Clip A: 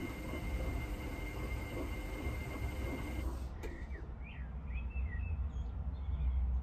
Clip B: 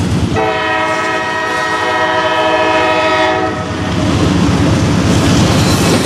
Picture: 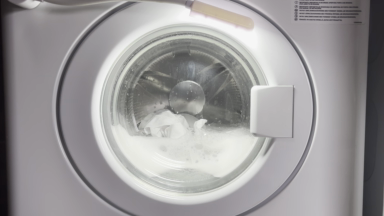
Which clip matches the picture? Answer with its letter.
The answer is A